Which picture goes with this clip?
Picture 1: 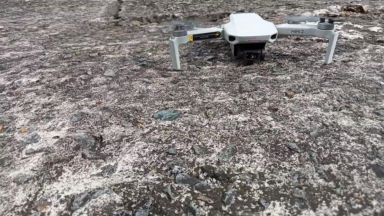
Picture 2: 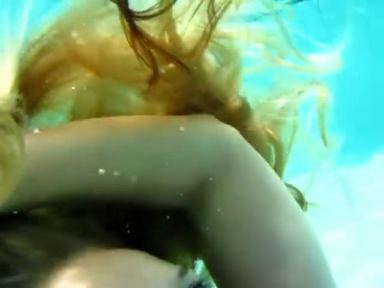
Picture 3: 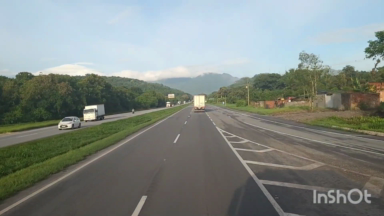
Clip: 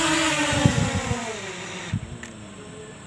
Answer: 1